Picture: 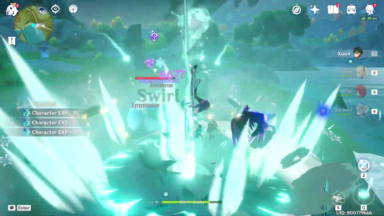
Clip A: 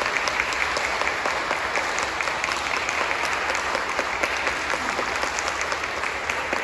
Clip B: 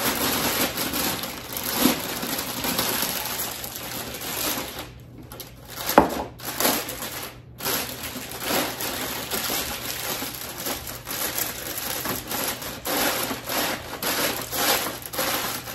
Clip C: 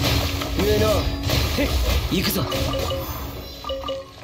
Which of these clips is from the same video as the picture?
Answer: C